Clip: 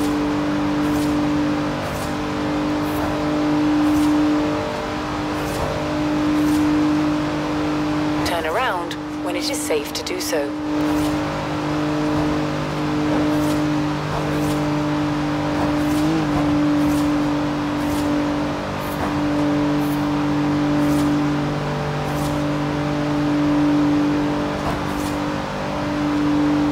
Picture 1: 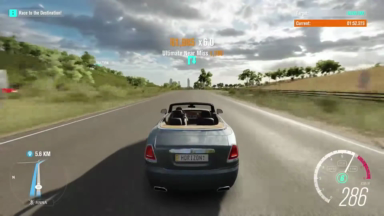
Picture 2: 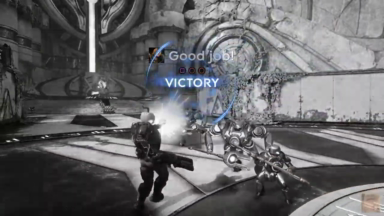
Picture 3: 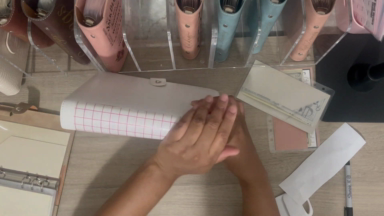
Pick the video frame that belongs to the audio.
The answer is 1